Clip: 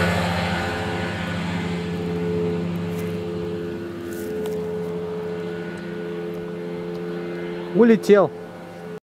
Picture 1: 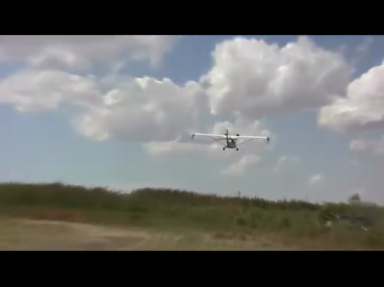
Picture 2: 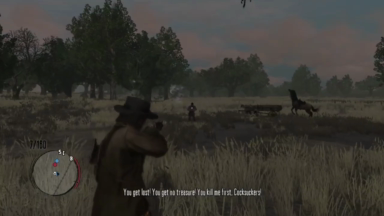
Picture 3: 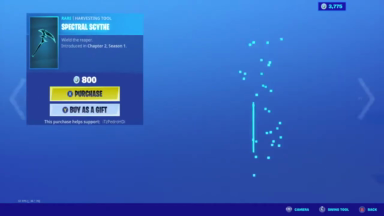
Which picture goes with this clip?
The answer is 1